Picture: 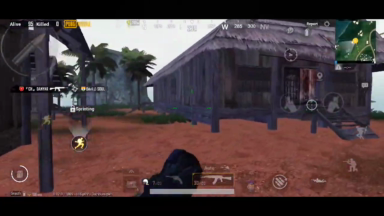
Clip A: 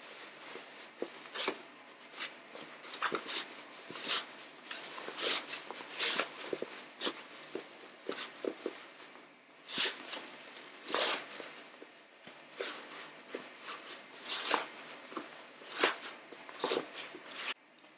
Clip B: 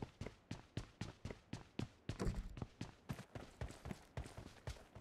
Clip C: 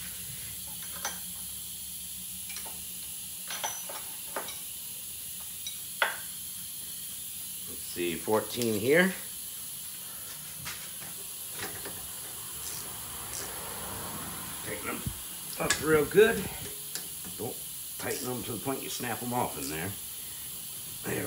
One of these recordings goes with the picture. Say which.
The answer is B